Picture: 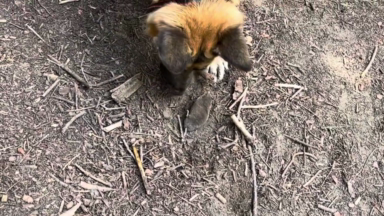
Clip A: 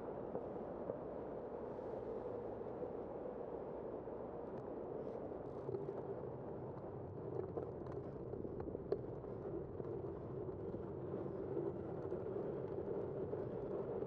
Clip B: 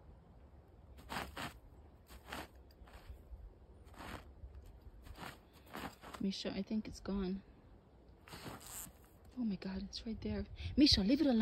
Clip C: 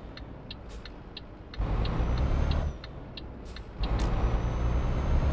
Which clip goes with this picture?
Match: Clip B